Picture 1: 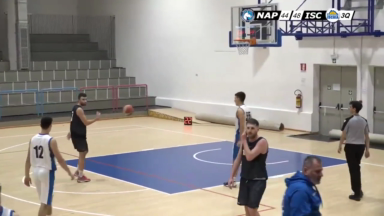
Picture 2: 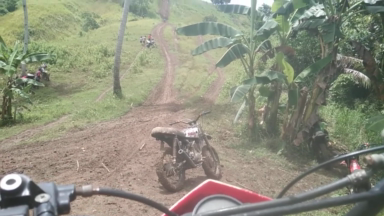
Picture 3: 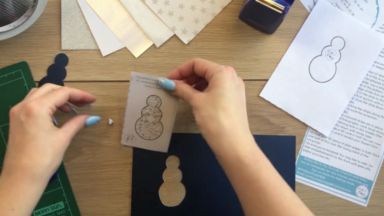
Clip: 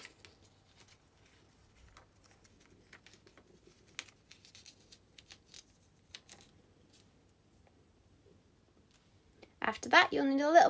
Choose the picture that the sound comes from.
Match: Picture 3